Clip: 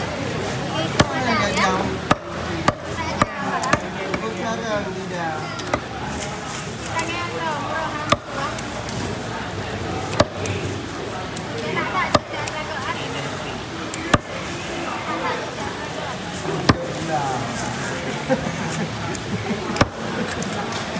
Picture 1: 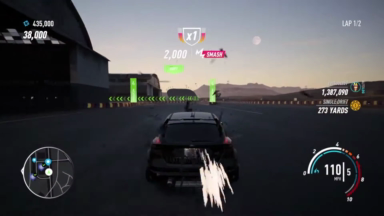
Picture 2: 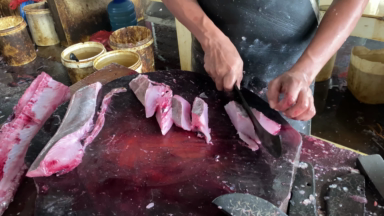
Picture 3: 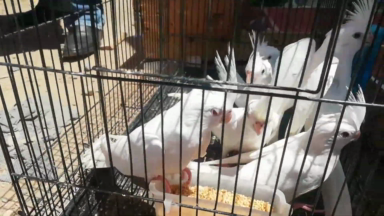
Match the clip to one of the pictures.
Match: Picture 2